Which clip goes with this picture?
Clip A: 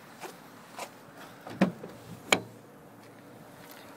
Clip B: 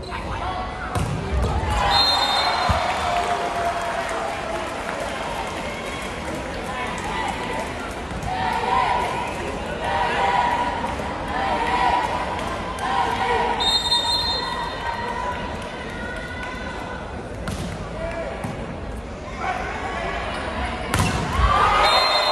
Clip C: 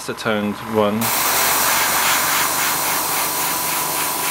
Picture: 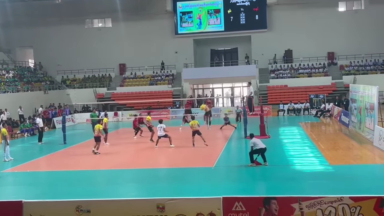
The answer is B